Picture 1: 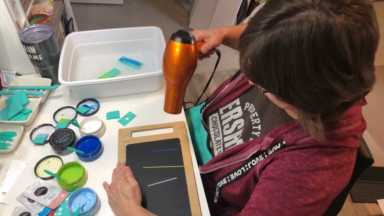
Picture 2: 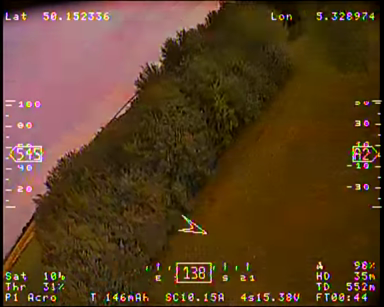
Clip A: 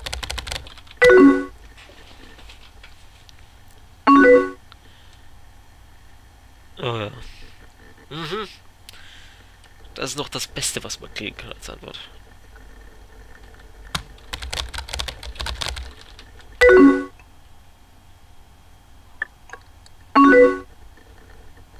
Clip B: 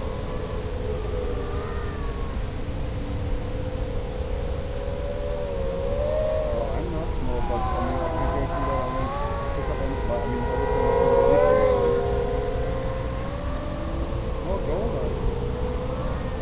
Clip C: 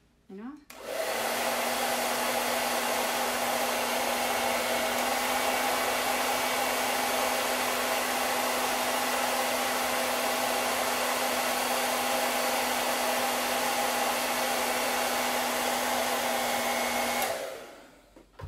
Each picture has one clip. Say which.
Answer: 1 C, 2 B